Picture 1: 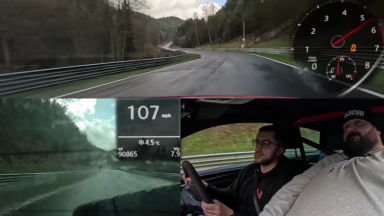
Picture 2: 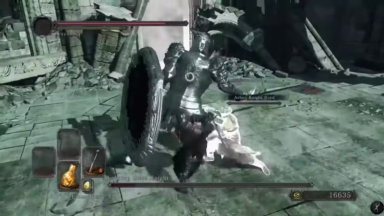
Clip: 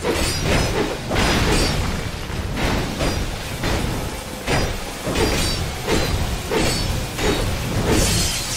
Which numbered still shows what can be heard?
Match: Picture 2